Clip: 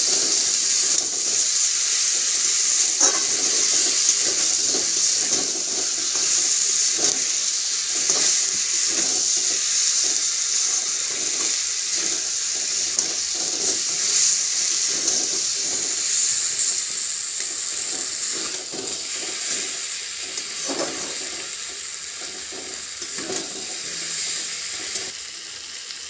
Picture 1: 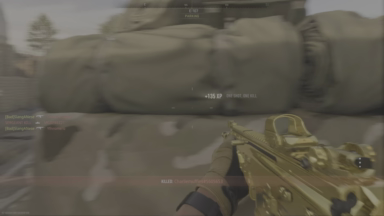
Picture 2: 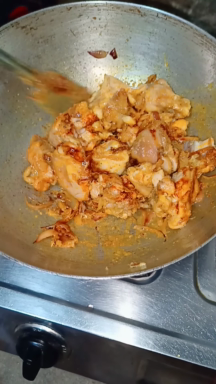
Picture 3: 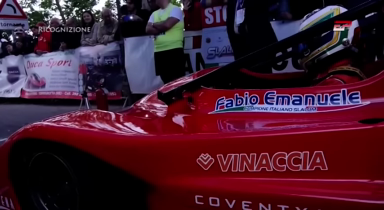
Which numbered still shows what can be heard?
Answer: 2